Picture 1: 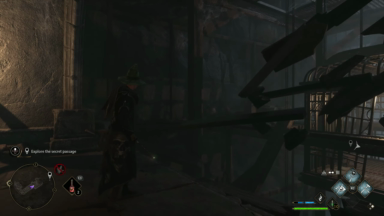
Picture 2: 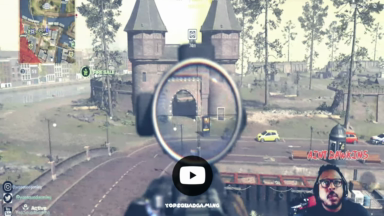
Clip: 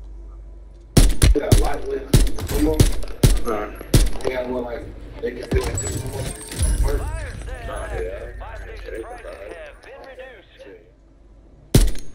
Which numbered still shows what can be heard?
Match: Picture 2